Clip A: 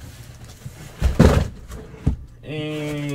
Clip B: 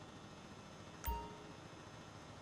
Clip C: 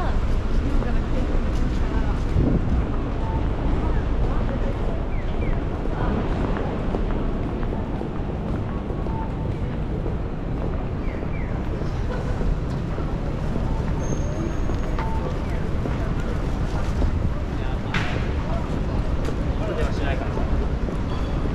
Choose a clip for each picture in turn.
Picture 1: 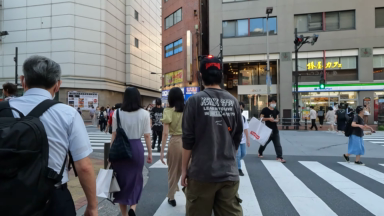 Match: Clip C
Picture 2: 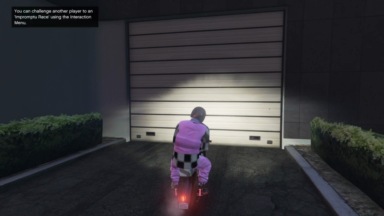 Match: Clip B